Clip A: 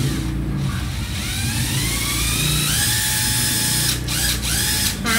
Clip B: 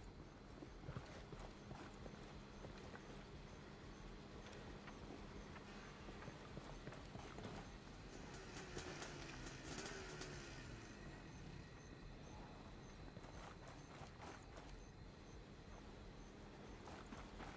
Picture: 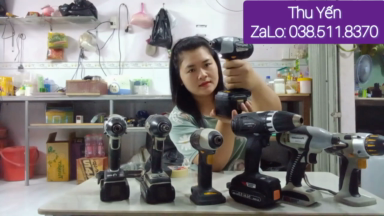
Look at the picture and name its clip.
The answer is A